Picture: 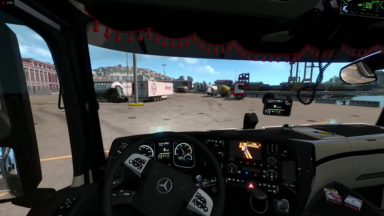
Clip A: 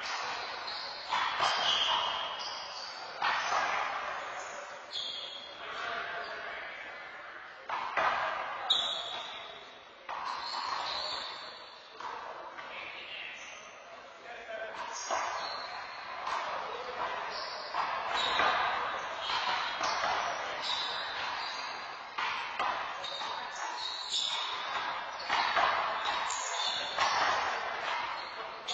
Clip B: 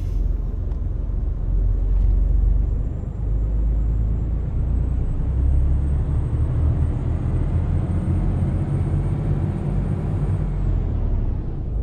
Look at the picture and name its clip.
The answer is B